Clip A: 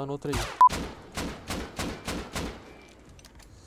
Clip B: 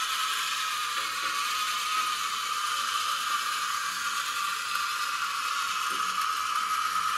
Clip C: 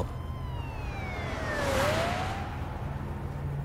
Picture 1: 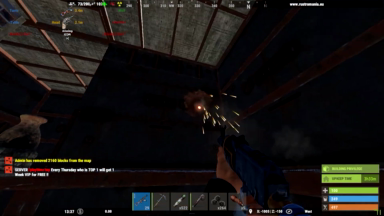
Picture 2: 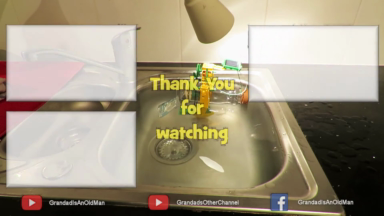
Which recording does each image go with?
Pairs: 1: A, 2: B